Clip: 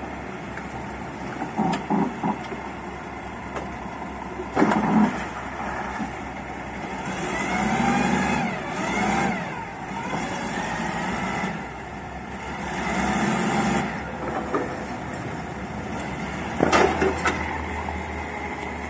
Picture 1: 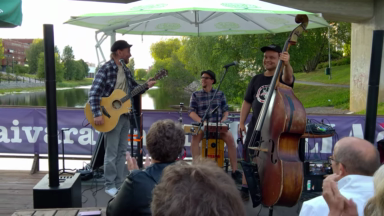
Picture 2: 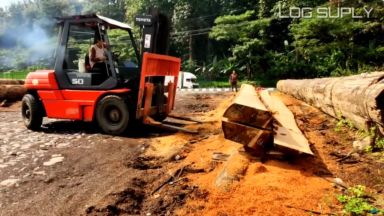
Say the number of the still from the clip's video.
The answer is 2